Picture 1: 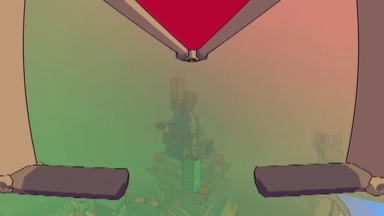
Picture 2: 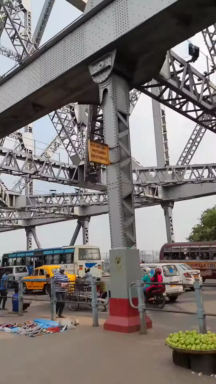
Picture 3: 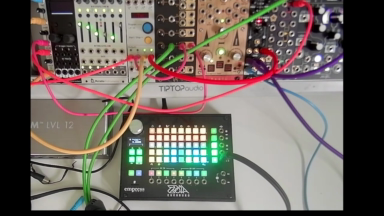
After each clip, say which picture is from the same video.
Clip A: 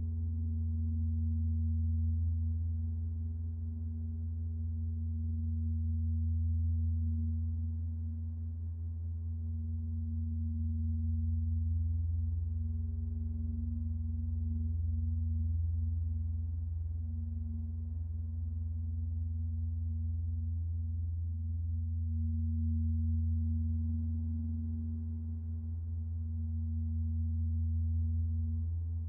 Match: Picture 3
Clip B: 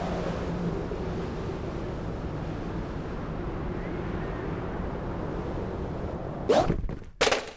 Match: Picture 1